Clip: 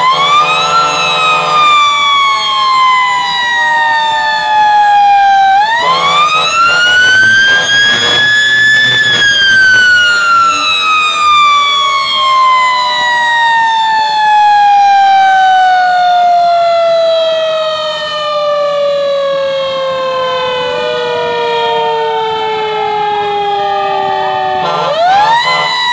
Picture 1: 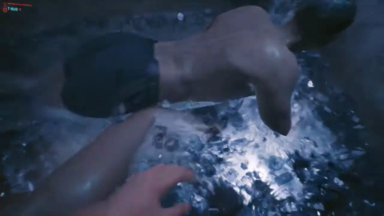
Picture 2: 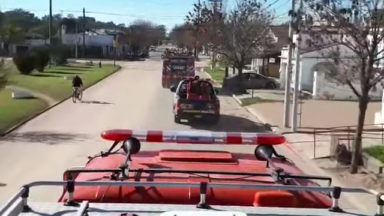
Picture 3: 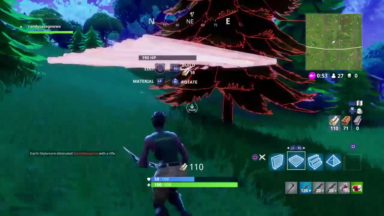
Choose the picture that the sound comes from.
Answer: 2